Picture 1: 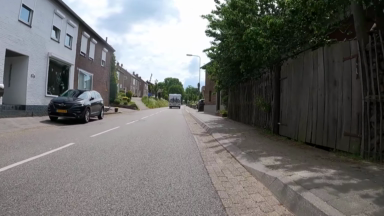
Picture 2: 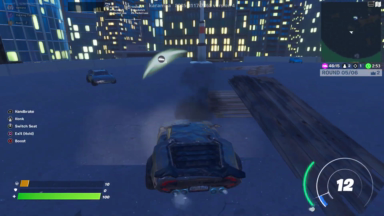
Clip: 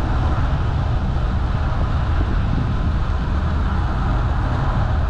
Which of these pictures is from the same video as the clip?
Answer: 1